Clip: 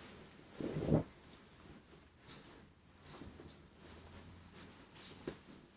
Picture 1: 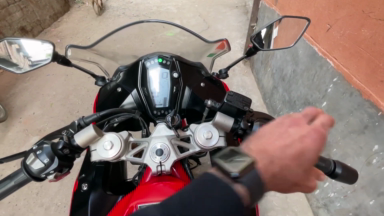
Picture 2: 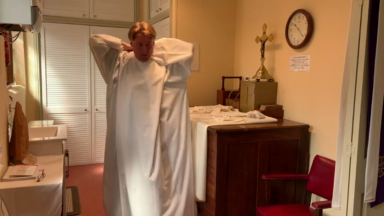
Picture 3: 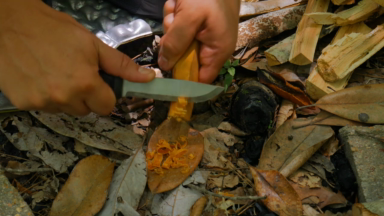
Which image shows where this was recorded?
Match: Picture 2